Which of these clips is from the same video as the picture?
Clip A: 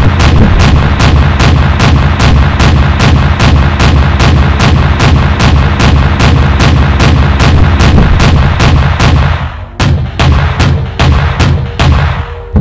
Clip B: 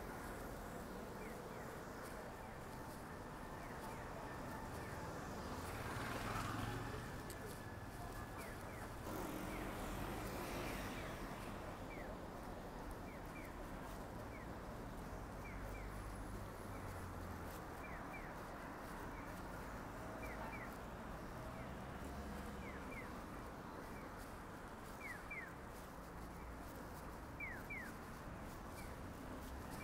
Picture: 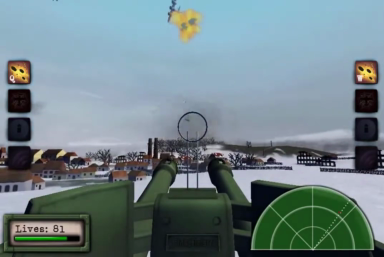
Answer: A